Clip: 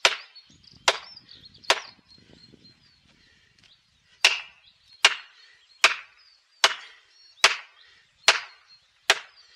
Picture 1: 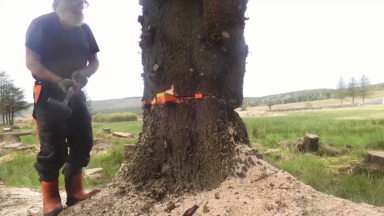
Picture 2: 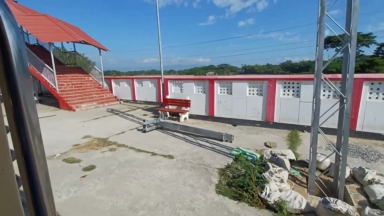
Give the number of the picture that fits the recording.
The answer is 1